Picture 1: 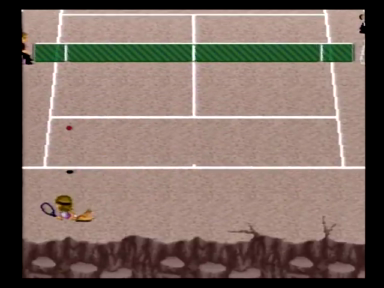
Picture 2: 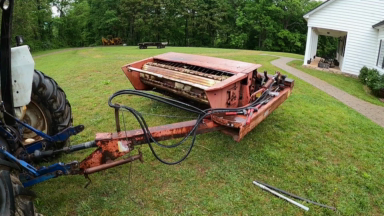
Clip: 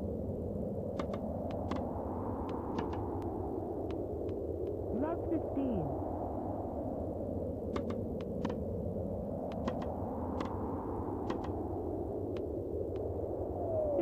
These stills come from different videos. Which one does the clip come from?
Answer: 1